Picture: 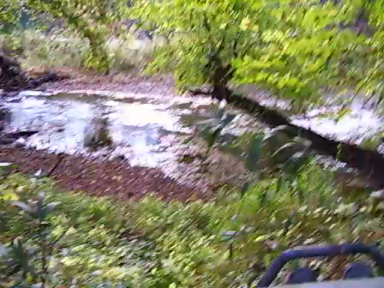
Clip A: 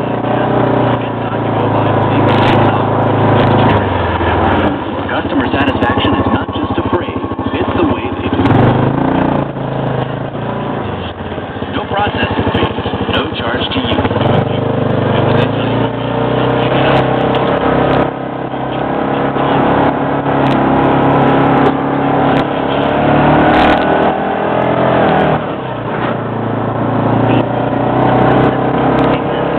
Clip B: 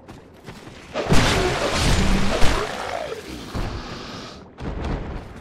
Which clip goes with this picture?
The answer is A